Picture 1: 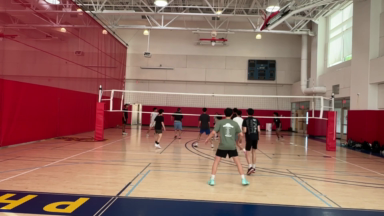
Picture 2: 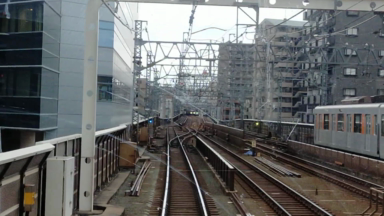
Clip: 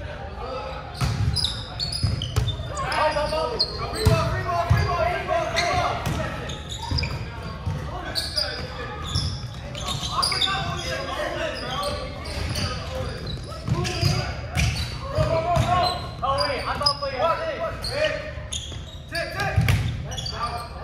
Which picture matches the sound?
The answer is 1